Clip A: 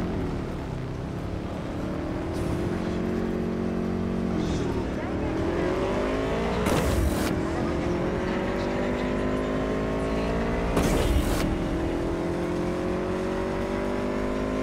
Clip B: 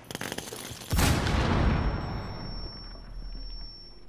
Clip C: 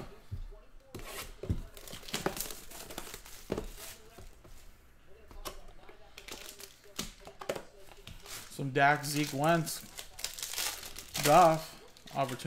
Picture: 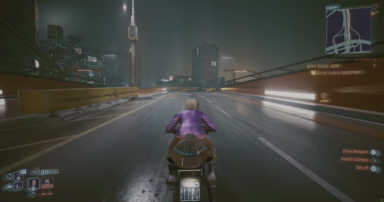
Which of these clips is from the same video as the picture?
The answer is A